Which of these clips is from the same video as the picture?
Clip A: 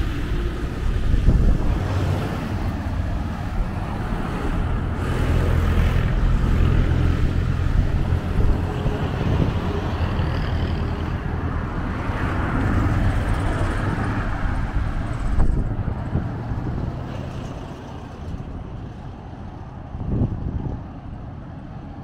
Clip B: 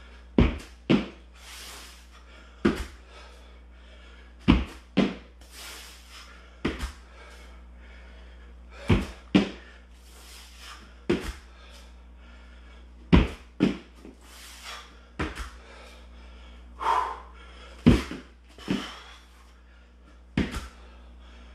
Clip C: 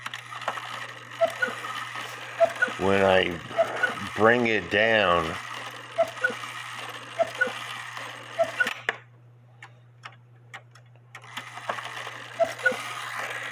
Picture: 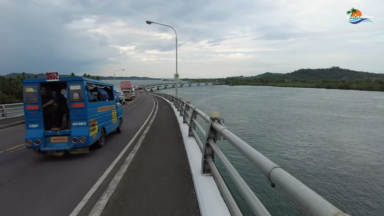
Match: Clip A